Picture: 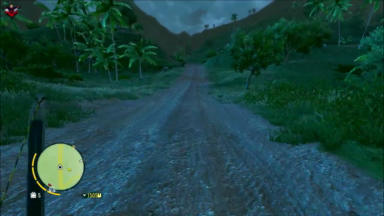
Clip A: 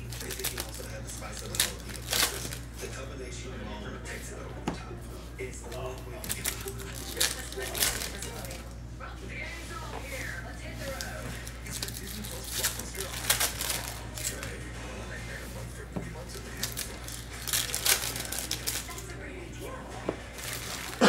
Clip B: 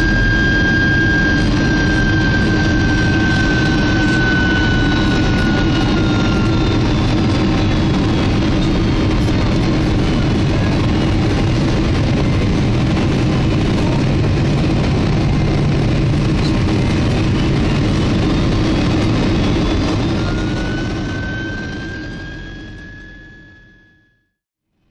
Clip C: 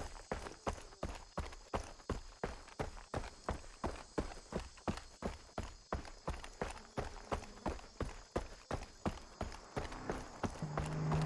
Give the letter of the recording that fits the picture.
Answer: C